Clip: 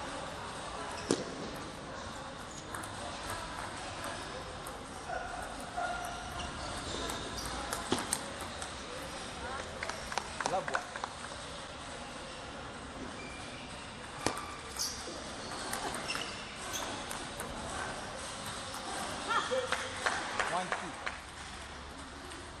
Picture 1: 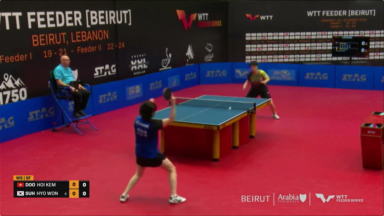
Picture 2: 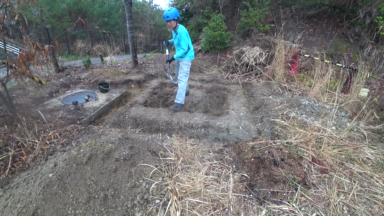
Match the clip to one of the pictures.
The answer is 1